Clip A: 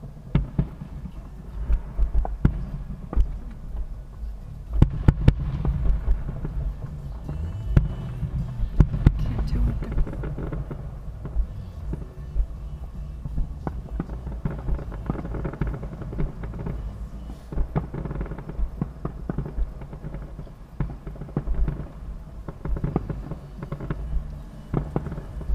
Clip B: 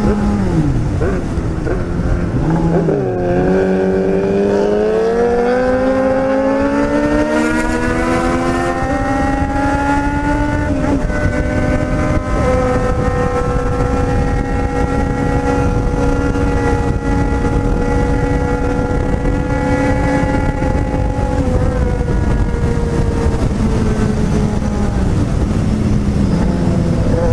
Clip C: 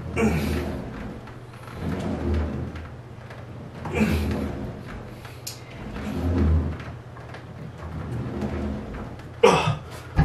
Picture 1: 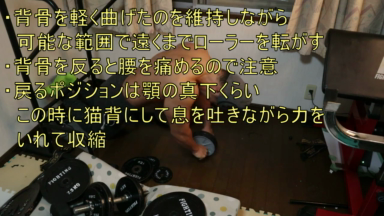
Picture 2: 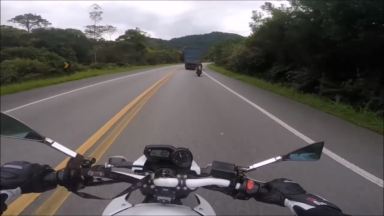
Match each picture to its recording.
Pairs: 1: C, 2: B